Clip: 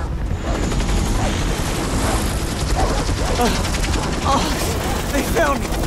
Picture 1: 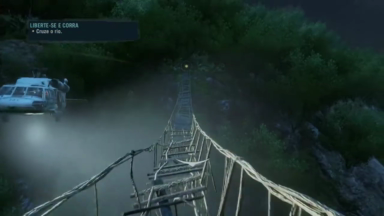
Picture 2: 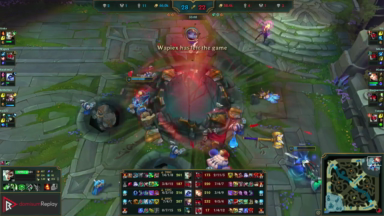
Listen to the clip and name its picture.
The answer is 1